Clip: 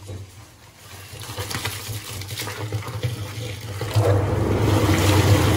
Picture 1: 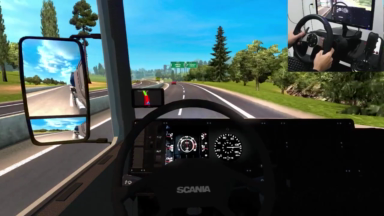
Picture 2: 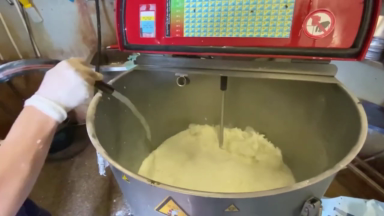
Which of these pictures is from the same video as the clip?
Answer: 2